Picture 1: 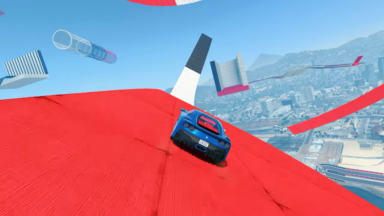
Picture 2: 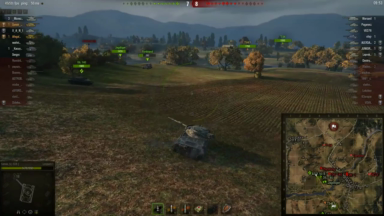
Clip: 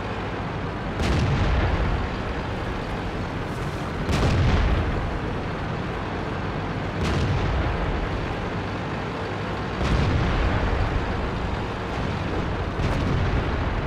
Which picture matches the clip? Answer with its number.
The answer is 2